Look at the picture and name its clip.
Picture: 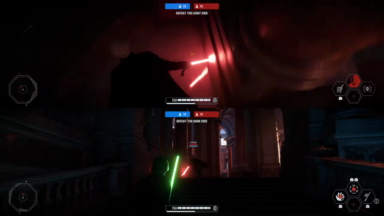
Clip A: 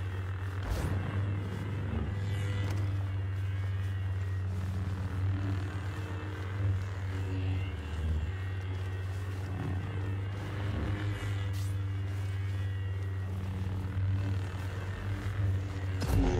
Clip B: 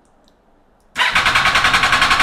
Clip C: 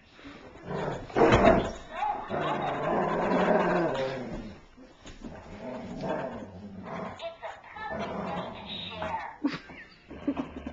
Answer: A